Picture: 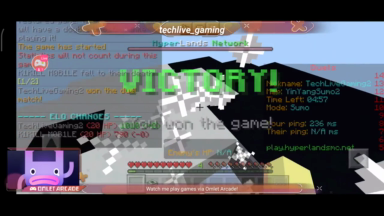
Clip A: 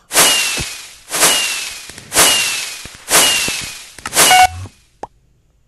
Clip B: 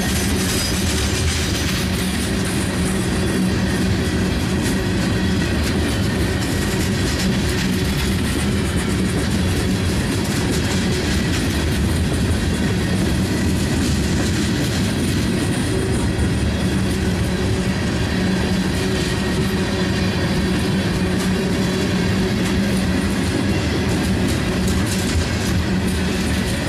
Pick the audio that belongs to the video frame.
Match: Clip A